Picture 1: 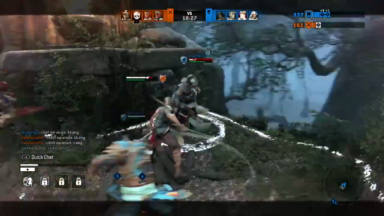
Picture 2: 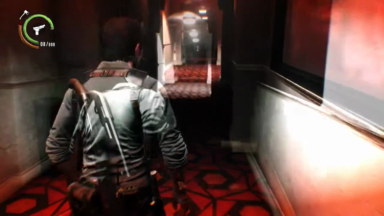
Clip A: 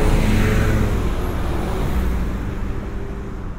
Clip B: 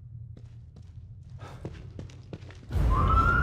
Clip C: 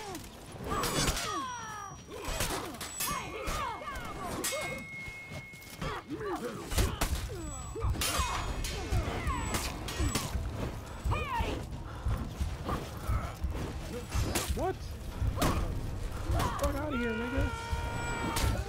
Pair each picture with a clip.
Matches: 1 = C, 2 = B